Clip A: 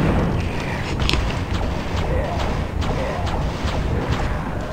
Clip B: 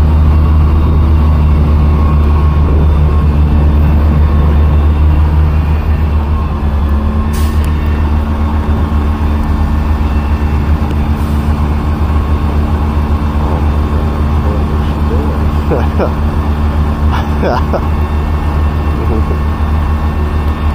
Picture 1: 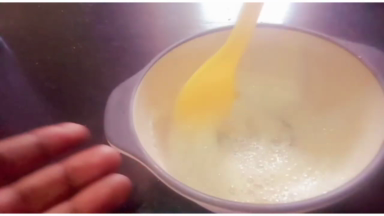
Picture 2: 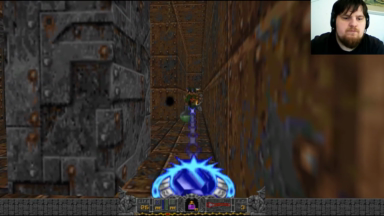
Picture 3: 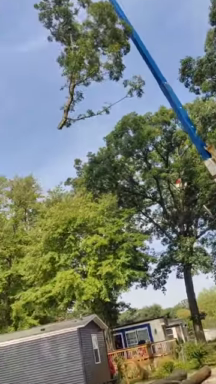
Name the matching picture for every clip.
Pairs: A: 2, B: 3